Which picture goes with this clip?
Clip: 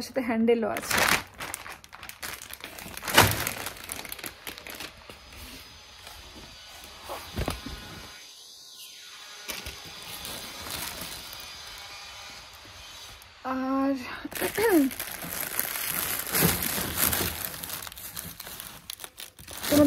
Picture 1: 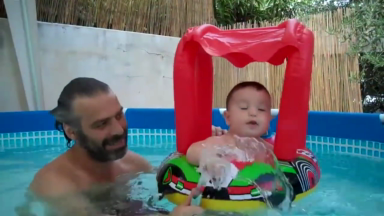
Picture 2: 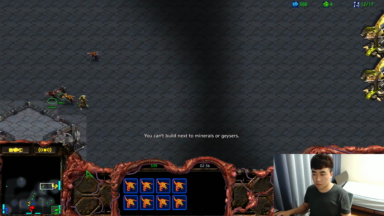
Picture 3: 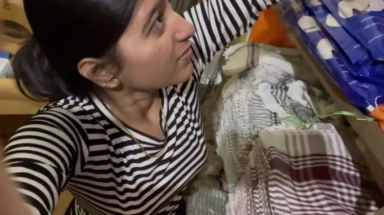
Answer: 3